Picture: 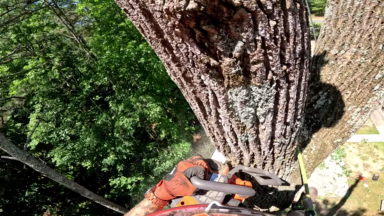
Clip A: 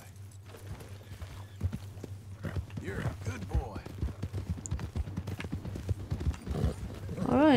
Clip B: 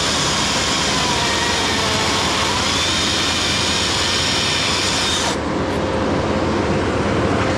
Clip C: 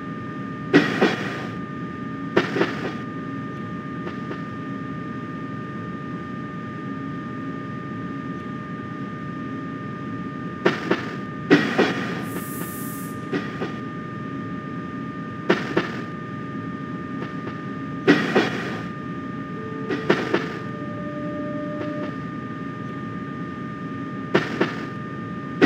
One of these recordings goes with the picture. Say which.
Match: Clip B